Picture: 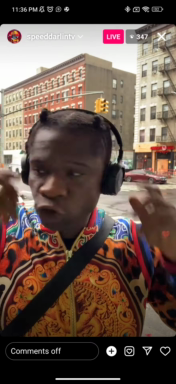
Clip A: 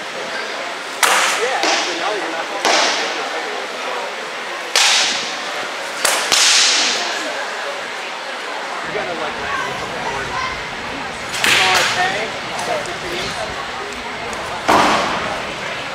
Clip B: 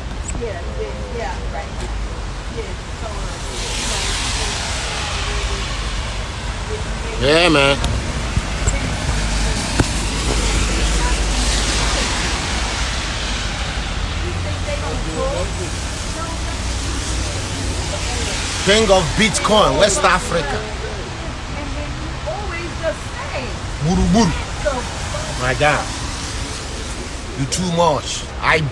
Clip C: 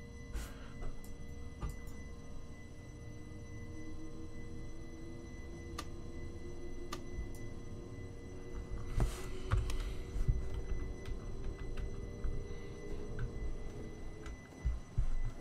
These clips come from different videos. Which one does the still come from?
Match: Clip B